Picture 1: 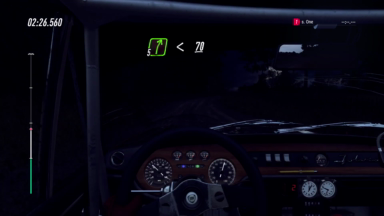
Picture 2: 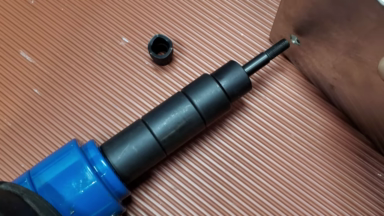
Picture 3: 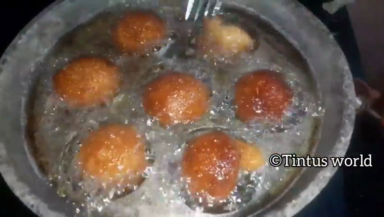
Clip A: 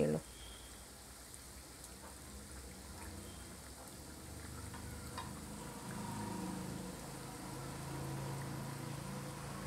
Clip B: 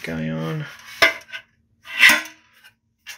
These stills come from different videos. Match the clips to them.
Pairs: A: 3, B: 2